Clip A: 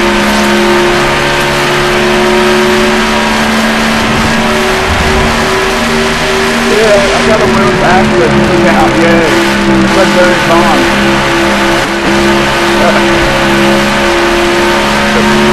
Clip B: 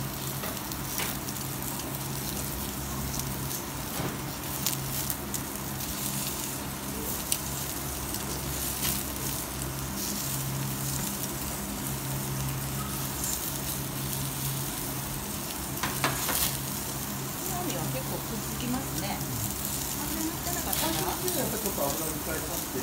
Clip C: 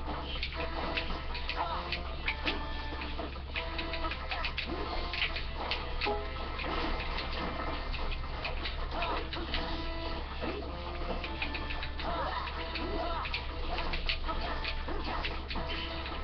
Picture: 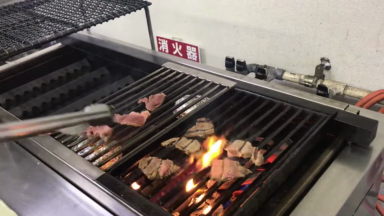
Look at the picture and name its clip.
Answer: B